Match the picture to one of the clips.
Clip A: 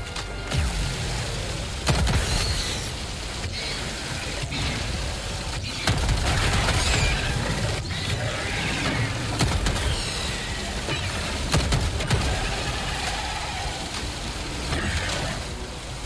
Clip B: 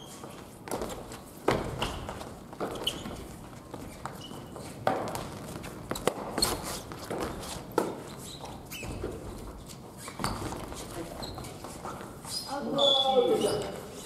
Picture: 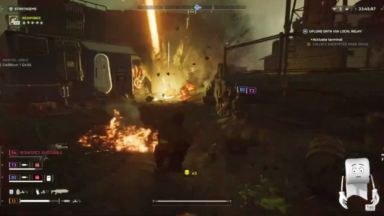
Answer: A